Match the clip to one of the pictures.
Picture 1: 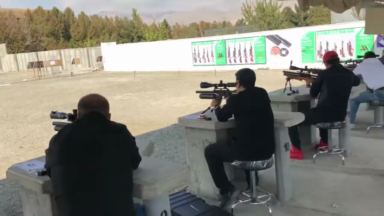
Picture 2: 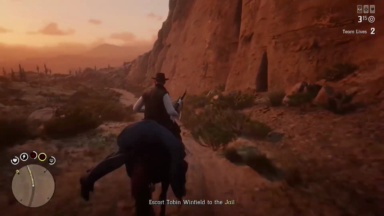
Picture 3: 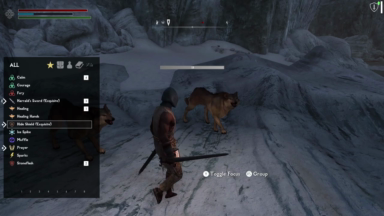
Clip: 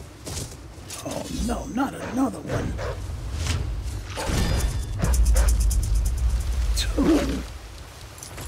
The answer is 3